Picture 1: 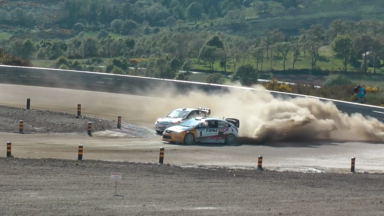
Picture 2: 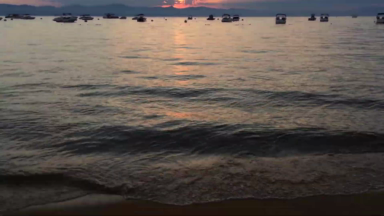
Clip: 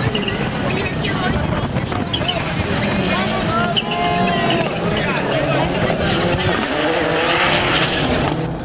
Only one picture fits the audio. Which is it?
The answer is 1